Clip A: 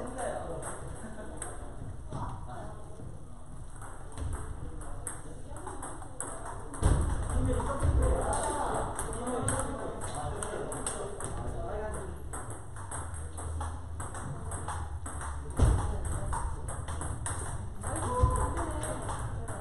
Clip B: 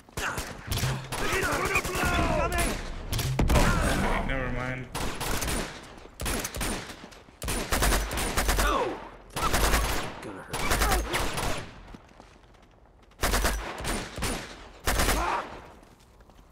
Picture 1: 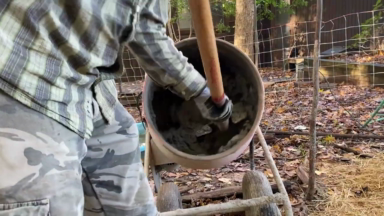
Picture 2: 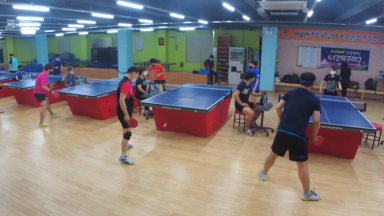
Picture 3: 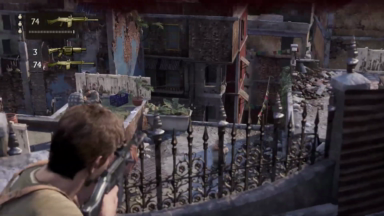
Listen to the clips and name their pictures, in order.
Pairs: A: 2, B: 3